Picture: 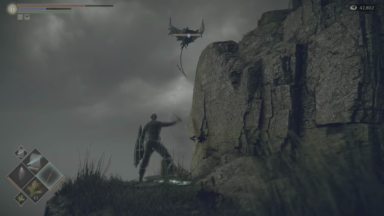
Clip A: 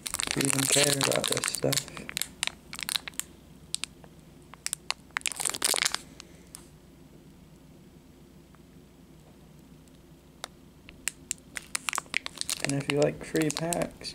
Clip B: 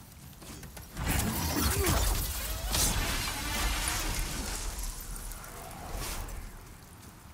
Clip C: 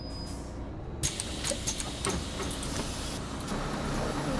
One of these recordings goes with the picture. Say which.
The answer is B